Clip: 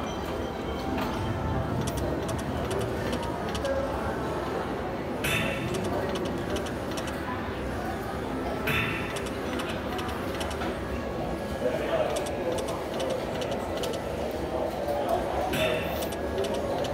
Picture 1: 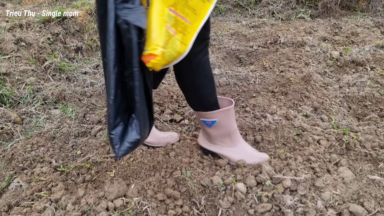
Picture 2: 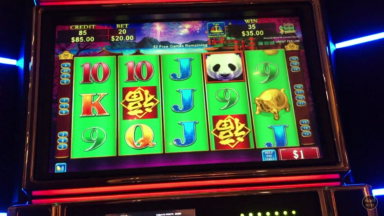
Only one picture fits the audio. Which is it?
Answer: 2